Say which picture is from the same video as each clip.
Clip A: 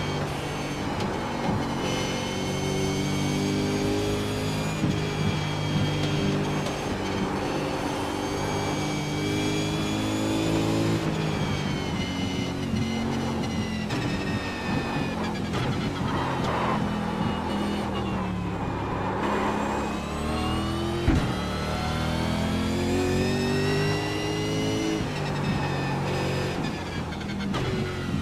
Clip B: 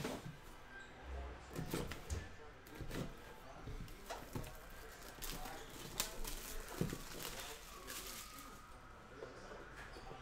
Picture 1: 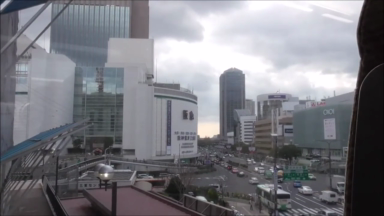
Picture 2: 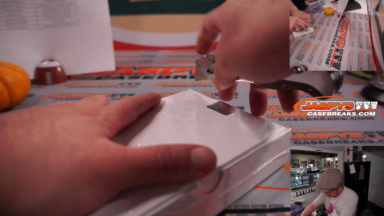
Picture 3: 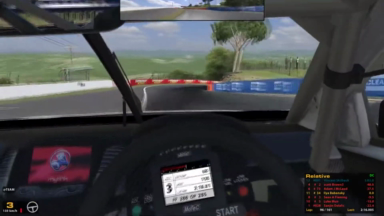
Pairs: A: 3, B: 2